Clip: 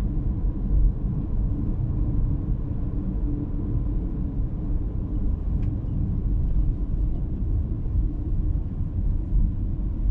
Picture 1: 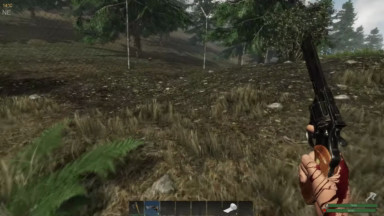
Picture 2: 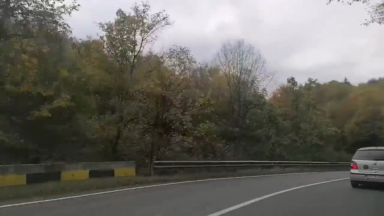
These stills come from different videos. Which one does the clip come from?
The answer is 2